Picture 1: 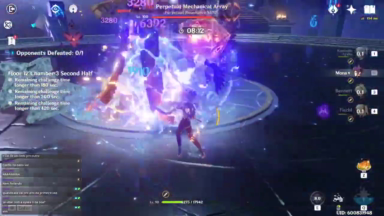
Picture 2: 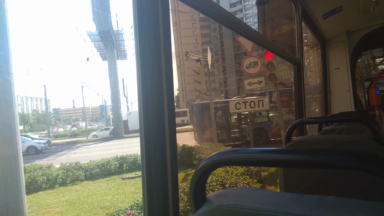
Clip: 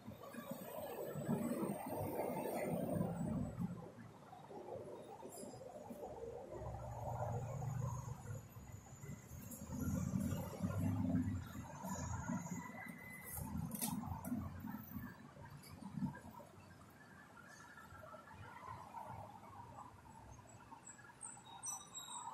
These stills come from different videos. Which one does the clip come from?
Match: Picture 2